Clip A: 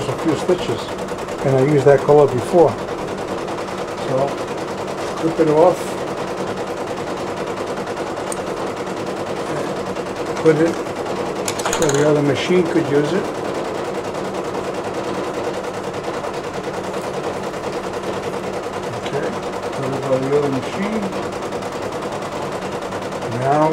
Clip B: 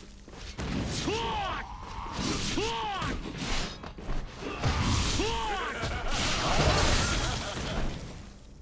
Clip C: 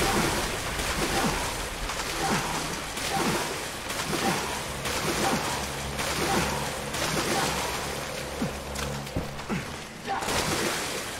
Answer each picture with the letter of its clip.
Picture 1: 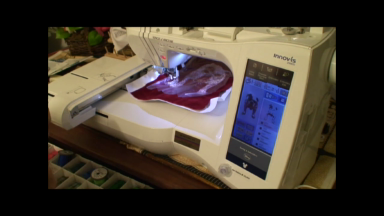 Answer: A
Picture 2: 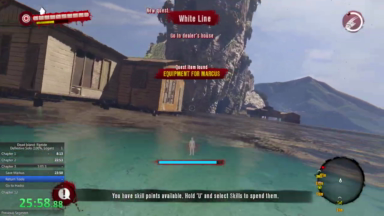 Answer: C